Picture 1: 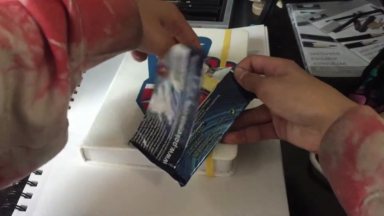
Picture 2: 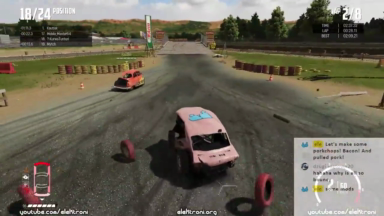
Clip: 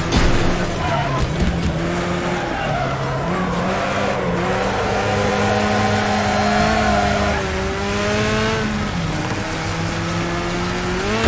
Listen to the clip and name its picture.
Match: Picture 2